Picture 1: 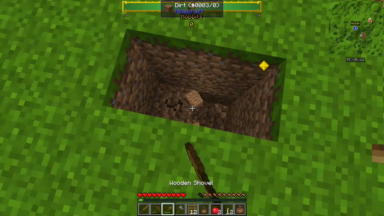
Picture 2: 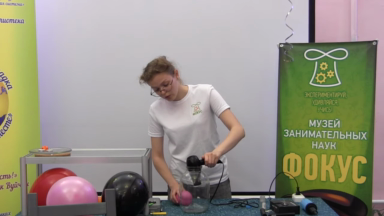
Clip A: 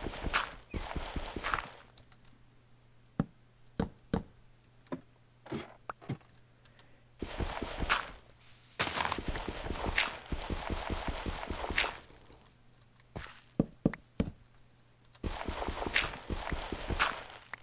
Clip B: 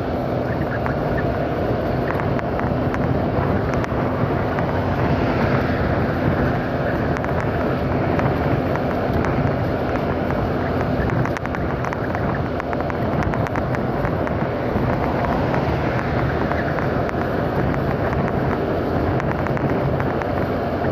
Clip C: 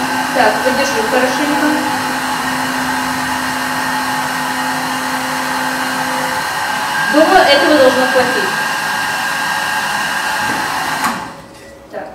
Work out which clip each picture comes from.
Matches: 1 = A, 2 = C